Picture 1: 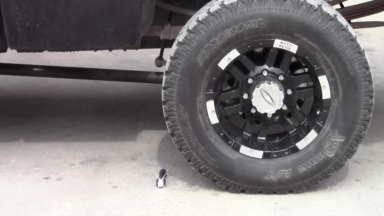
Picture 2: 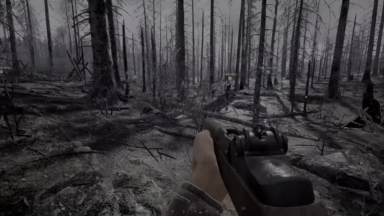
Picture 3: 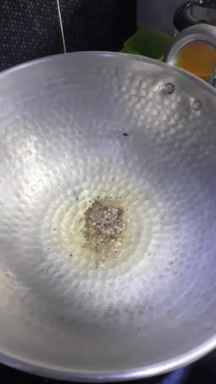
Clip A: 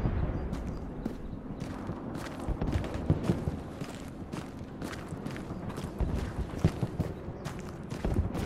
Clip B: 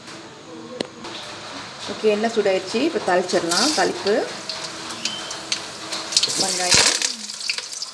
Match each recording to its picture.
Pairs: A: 2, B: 3